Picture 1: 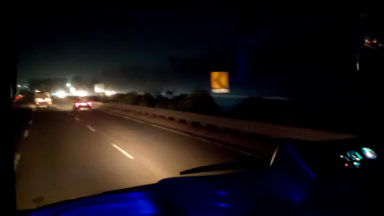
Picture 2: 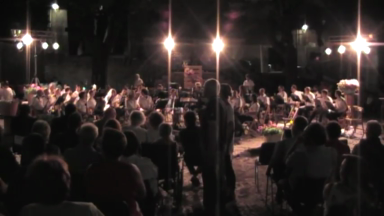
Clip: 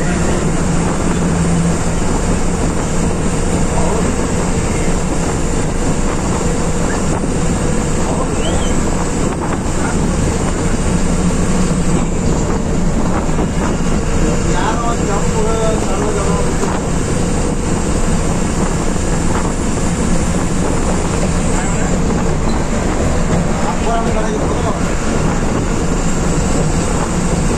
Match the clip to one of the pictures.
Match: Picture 1